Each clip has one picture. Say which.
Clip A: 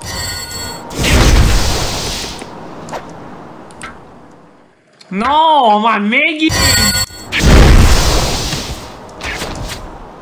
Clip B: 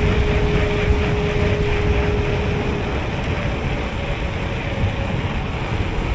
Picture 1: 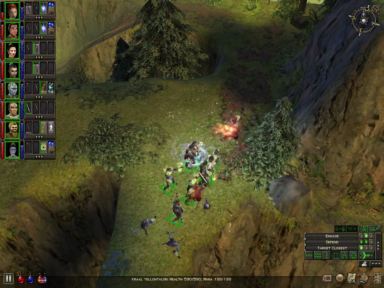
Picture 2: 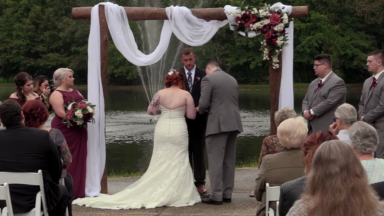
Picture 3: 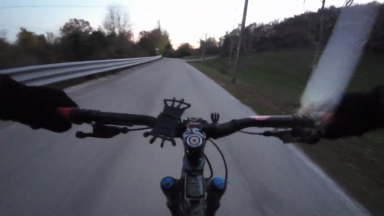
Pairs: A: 1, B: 3